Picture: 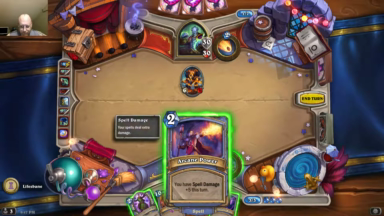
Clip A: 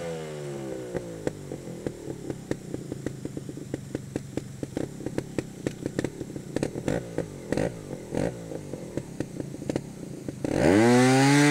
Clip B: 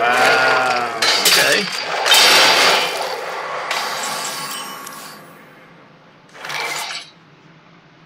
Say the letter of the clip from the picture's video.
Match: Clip B